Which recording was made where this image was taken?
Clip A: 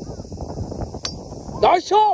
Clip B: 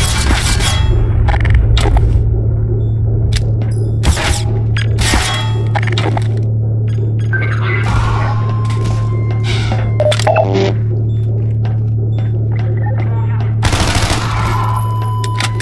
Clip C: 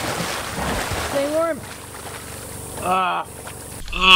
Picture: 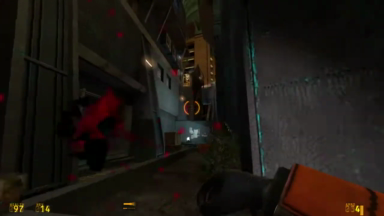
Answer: B